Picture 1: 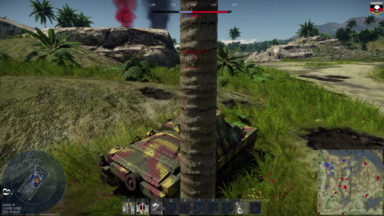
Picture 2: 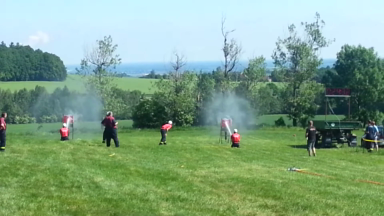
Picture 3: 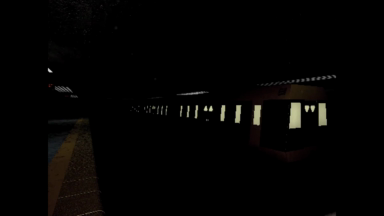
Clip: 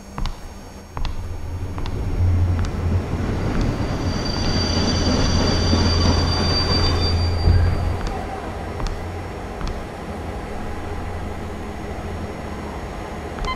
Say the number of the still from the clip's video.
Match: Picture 3